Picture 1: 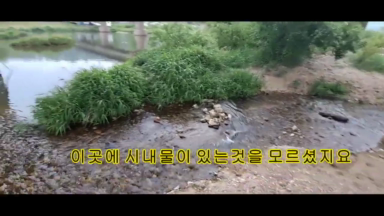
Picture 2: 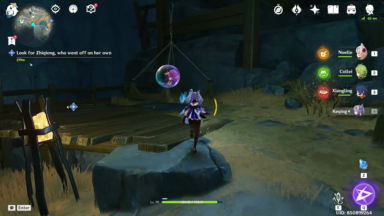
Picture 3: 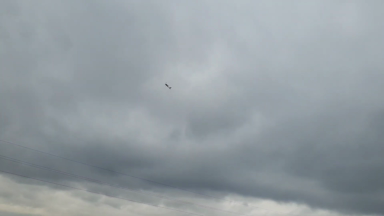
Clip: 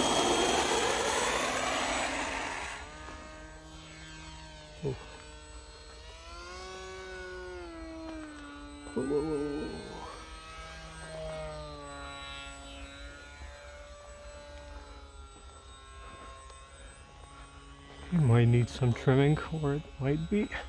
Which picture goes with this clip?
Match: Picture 3